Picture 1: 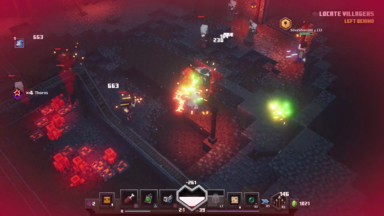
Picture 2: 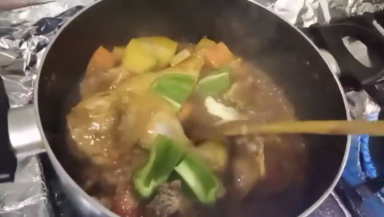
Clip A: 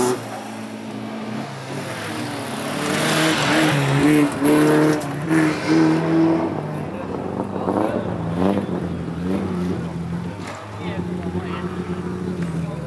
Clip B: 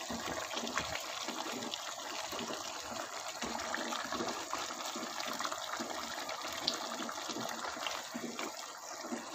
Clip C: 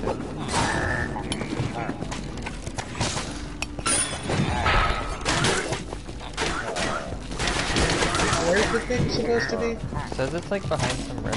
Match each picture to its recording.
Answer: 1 C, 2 B